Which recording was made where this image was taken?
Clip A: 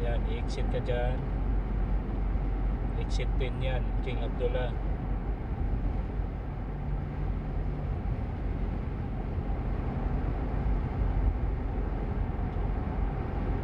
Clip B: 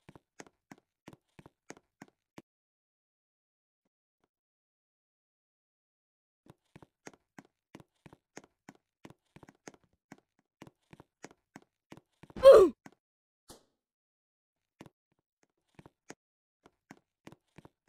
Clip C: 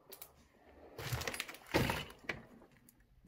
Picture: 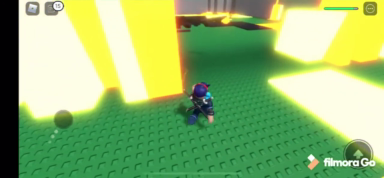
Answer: B